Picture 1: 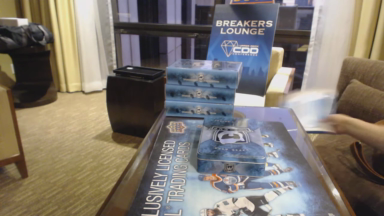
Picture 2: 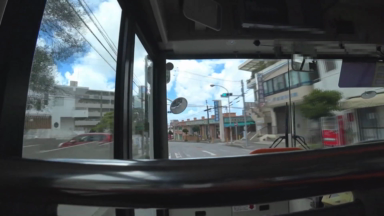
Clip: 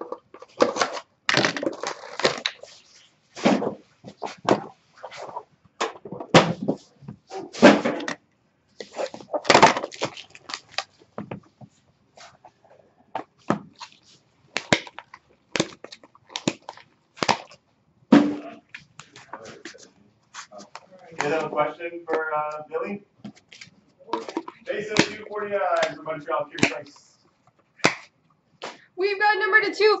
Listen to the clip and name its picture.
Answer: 1